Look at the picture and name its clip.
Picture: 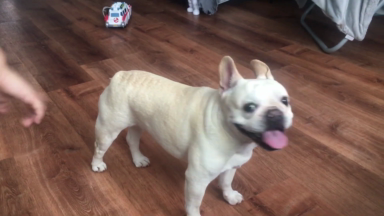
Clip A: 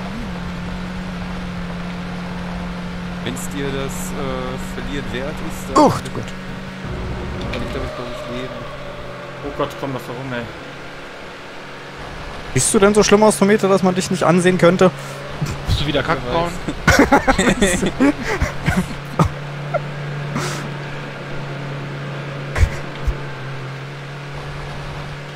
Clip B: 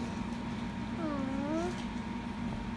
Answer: B